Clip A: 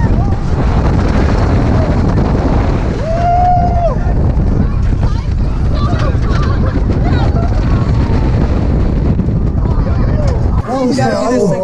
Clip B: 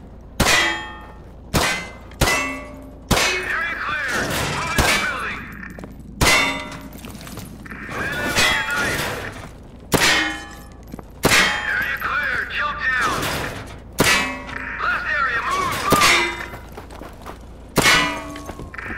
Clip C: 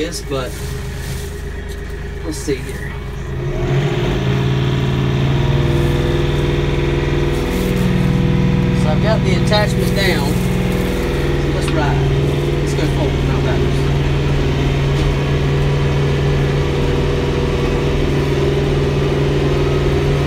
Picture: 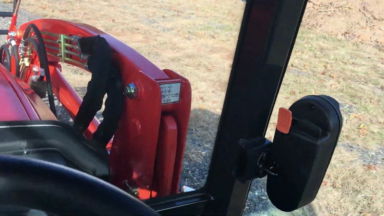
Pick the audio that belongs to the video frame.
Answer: C